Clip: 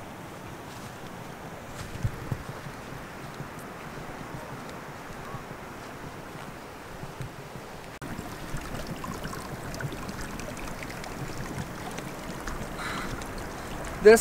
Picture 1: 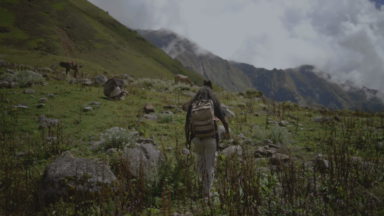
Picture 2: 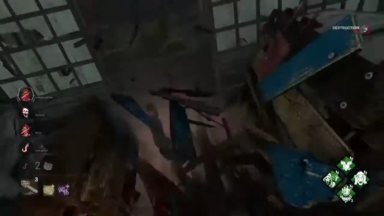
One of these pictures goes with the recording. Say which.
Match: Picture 1